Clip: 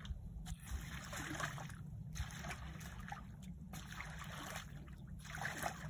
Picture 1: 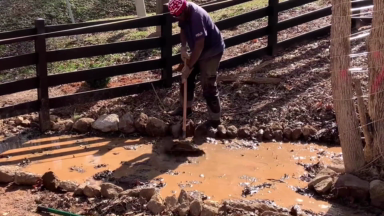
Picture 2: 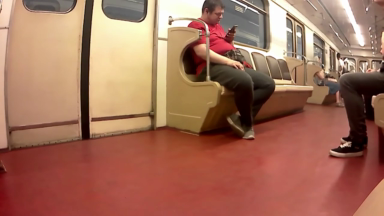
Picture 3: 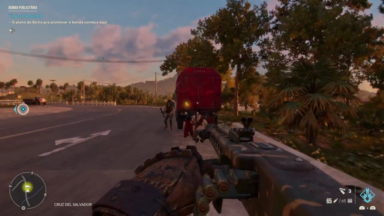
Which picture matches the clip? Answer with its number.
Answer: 1